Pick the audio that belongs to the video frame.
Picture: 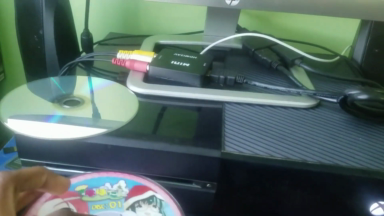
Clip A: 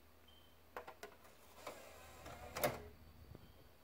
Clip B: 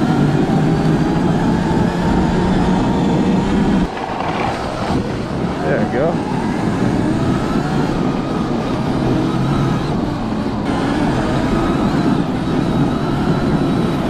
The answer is A